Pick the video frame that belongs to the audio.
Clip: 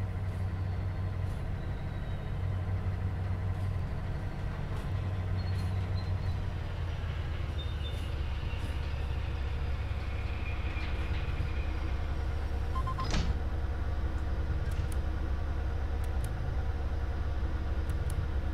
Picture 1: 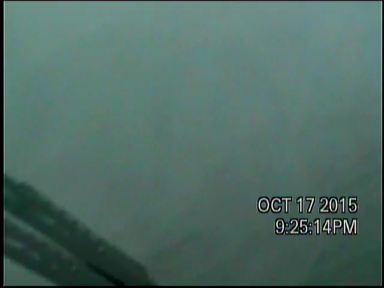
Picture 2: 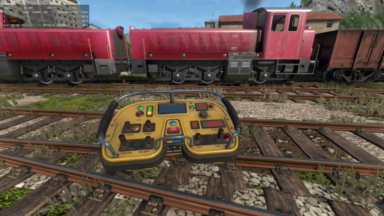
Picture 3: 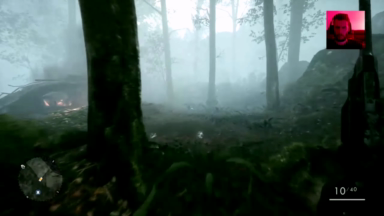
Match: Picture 2